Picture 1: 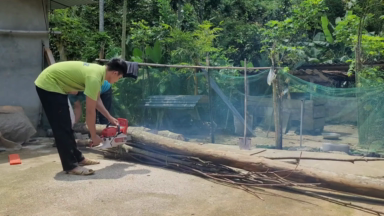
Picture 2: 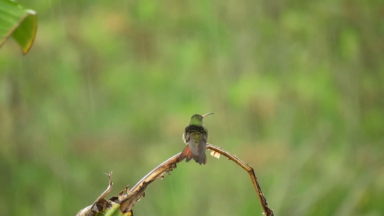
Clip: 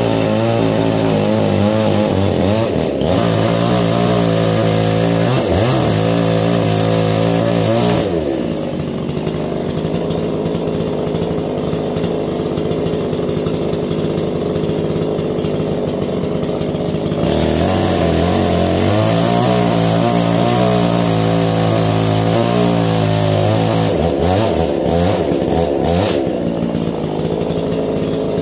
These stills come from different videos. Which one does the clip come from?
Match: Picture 1